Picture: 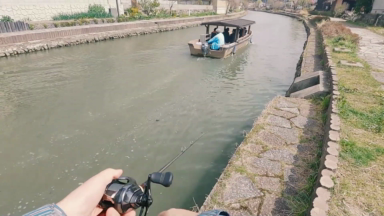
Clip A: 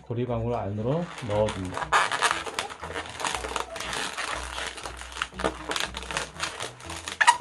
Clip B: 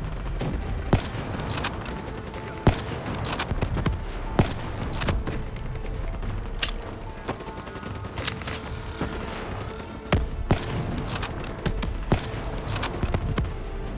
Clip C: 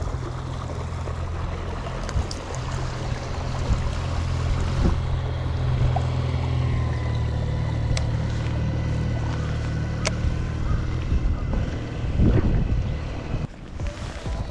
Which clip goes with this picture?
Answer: C